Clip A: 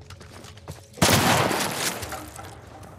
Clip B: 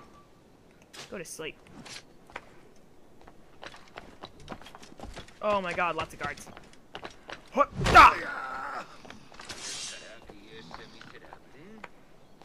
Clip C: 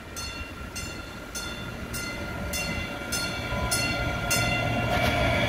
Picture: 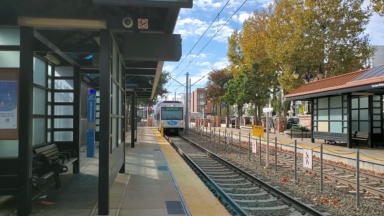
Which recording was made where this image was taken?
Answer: C